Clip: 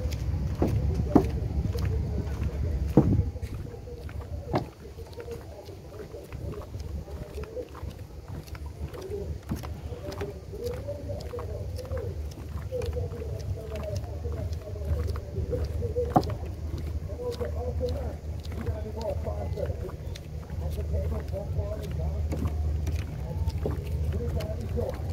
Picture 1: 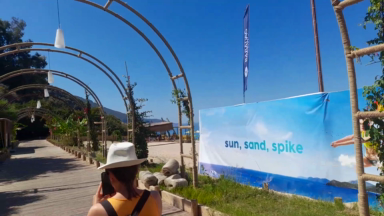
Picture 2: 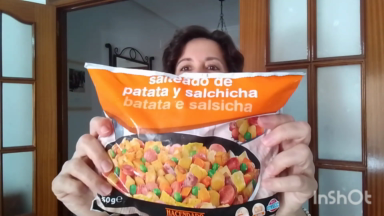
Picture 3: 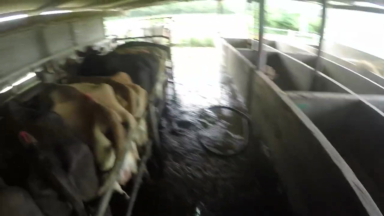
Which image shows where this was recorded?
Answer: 1